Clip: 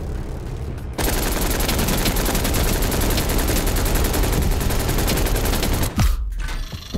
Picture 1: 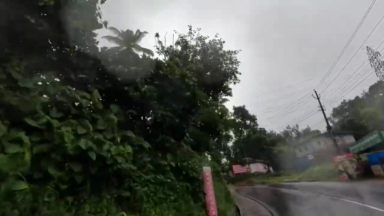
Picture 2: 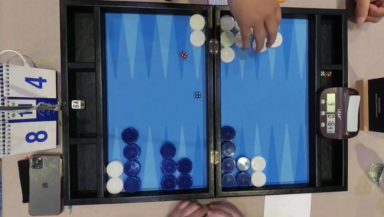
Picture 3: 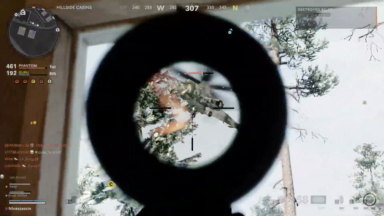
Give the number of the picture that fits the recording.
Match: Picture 3